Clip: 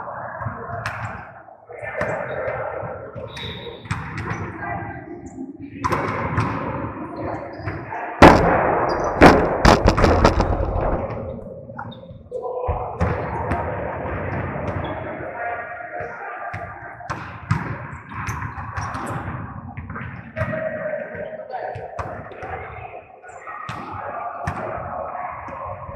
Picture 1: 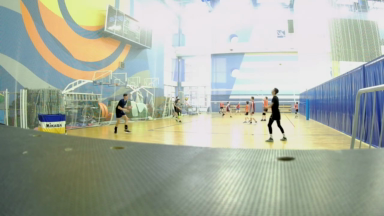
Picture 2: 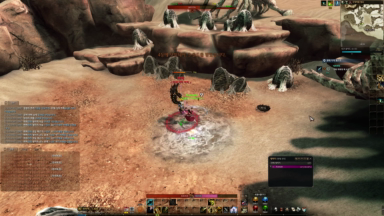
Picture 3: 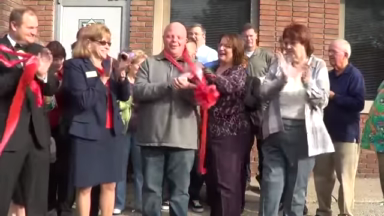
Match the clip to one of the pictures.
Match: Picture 1